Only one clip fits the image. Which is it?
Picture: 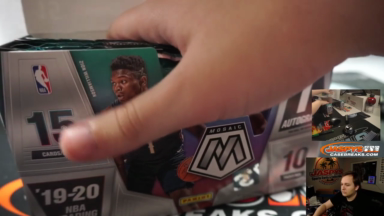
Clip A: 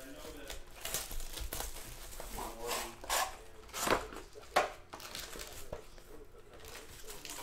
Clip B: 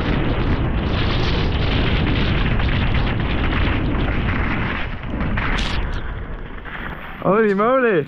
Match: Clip A